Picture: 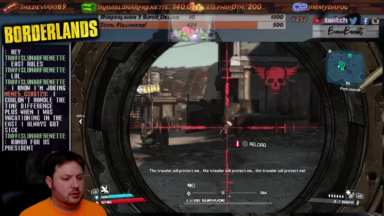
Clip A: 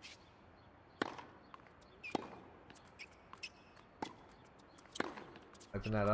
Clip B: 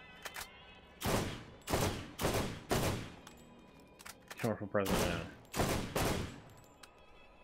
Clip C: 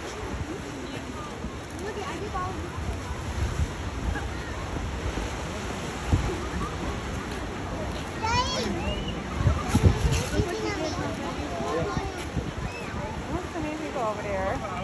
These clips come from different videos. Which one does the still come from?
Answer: B